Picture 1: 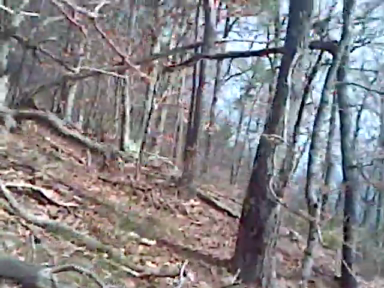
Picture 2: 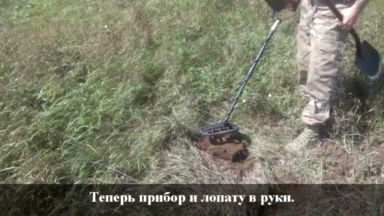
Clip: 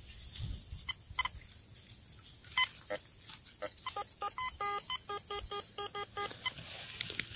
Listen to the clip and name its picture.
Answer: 2